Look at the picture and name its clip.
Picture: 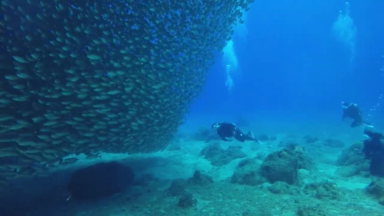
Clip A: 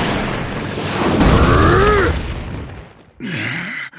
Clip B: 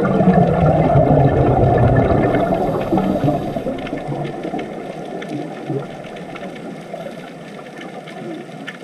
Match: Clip B